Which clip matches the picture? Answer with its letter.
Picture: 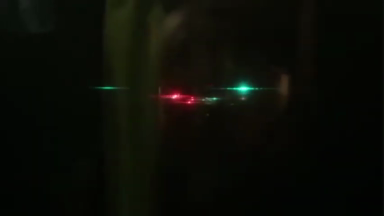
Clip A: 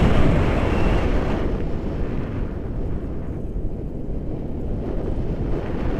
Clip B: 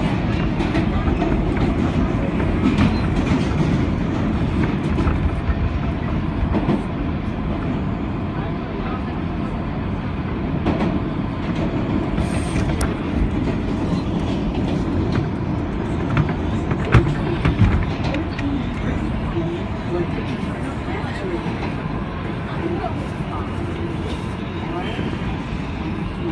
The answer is B